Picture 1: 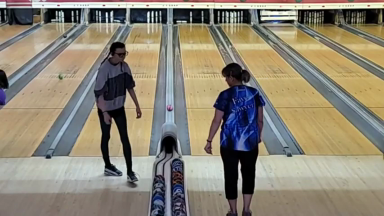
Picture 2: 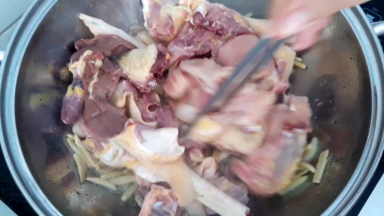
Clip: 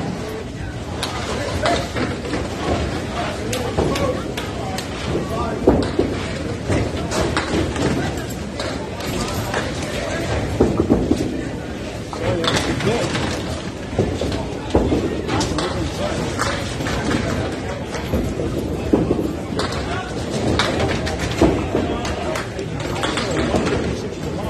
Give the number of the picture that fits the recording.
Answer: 1